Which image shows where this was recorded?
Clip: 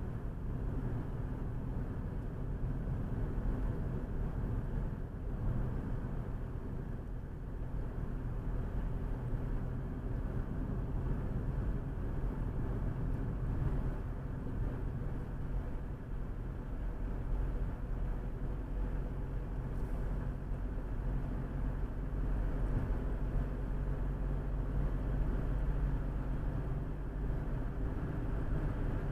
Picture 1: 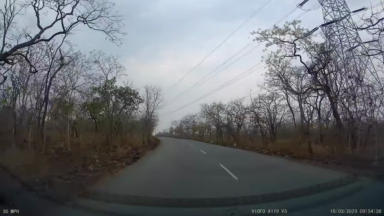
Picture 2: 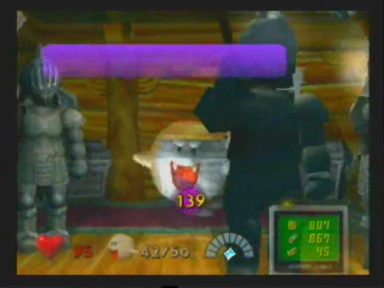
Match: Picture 1